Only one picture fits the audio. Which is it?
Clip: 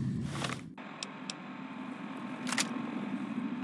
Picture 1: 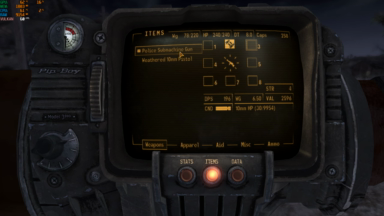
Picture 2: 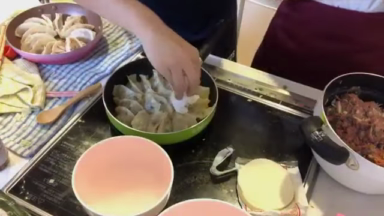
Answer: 1